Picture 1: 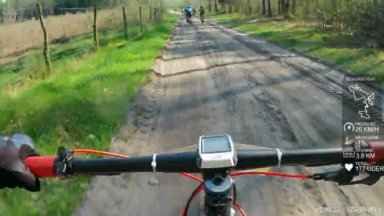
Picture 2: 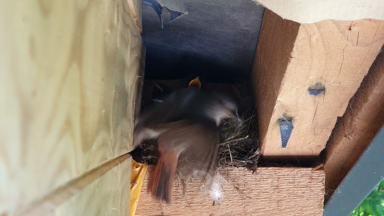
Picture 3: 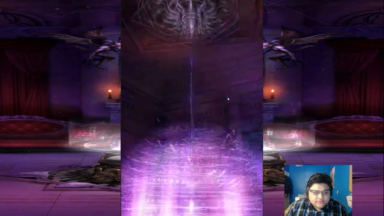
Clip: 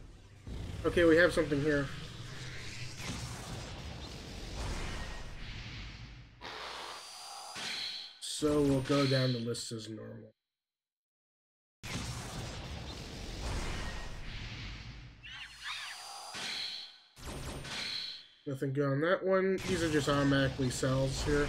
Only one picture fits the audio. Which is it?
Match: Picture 3